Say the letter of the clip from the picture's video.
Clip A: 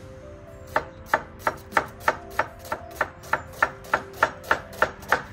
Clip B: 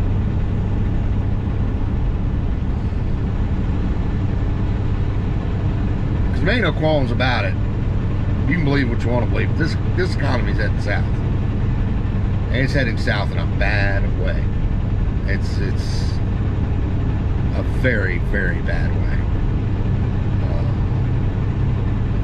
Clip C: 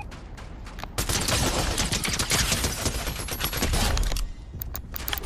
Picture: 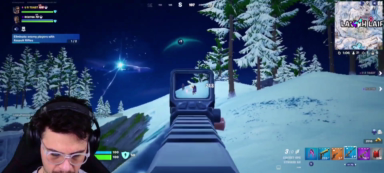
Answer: C